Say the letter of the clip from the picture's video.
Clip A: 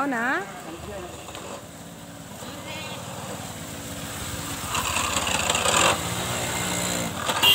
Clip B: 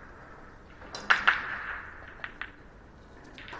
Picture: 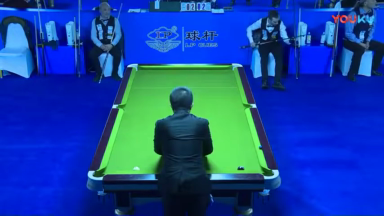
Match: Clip B